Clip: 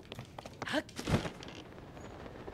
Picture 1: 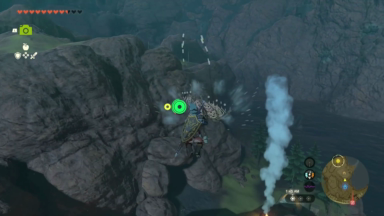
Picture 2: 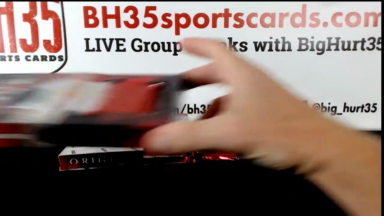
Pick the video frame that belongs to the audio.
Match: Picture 1